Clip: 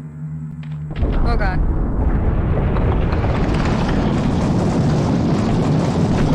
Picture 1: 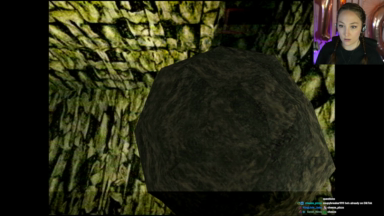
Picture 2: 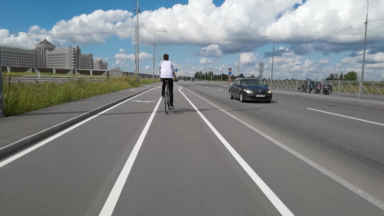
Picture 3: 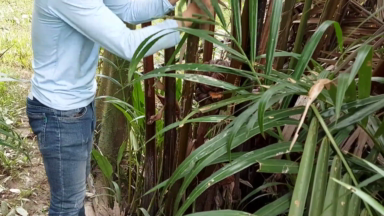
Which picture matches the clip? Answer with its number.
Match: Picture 1